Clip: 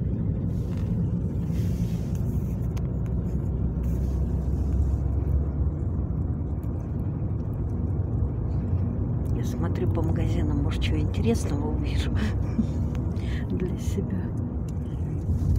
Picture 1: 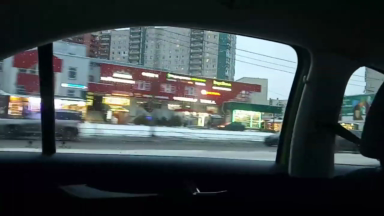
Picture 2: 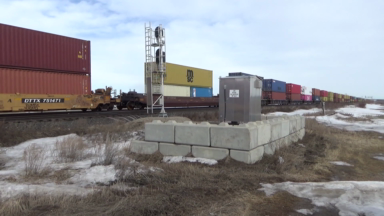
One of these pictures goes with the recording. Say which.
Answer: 1